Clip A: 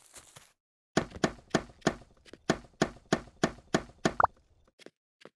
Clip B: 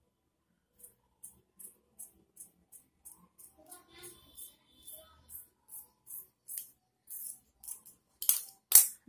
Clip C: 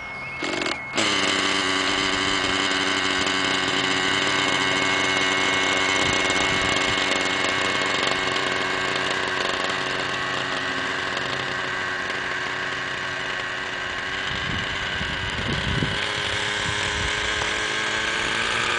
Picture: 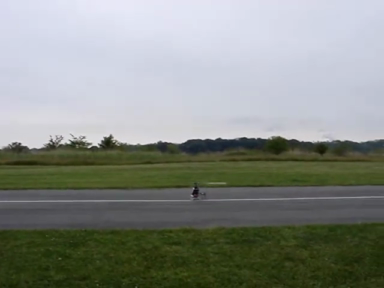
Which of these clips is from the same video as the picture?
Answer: C